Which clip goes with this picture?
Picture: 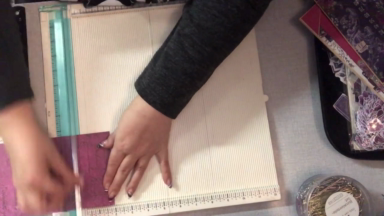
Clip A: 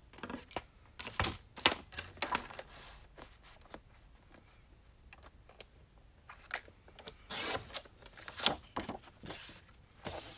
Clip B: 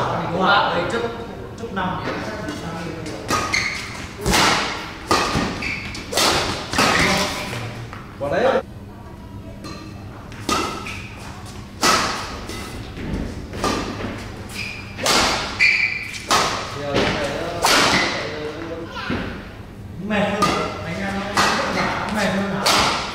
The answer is A